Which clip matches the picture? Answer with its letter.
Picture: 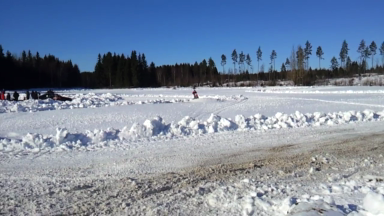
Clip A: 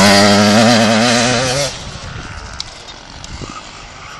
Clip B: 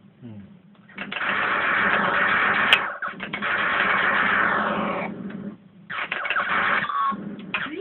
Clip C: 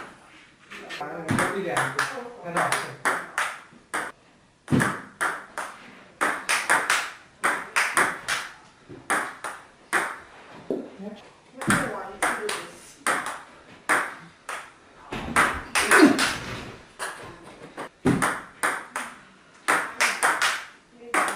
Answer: A